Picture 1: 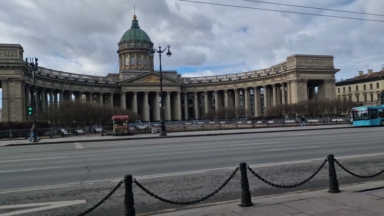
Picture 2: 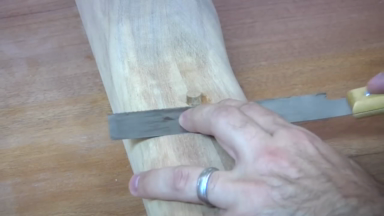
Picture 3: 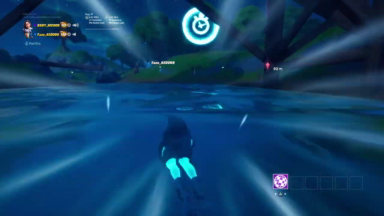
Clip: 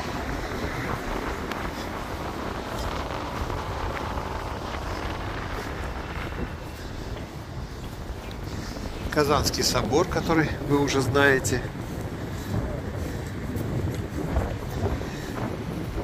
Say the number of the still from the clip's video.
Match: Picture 1